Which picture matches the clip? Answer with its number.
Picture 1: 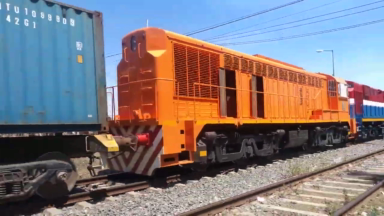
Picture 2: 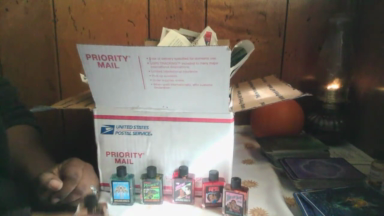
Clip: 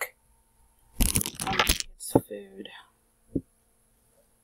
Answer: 2